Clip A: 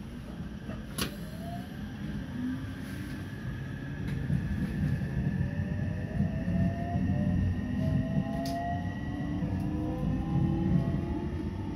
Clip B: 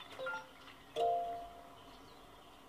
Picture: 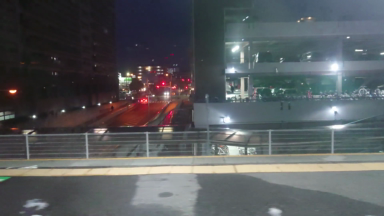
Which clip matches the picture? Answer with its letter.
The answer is A